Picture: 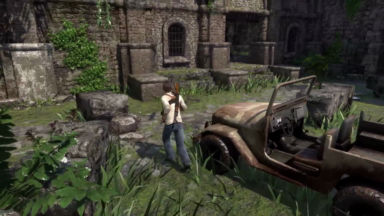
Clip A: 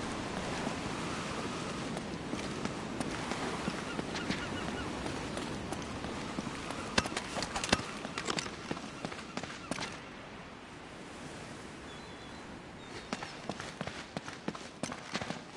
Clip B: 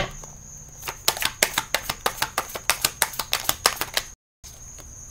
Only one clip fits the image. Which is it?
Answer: A